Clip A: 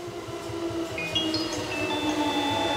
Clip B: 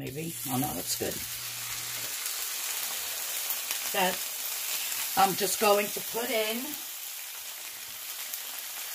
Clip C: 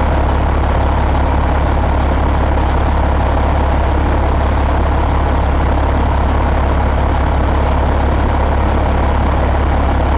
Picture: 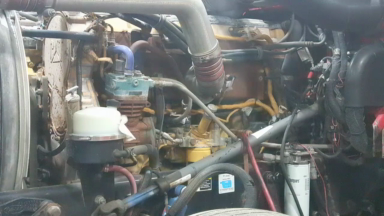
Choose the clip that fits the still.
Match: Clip C